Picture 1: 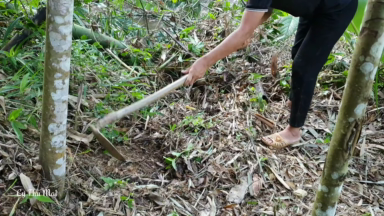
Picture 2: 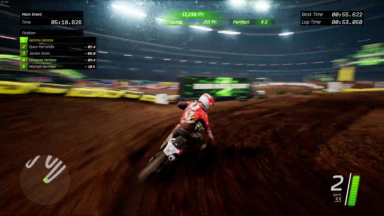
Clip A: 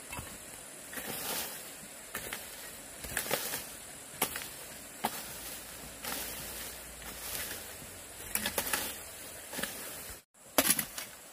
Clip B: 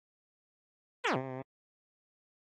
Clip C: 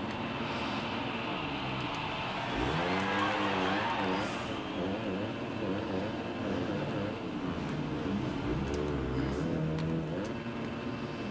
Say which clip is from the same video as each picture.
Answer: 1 A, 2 C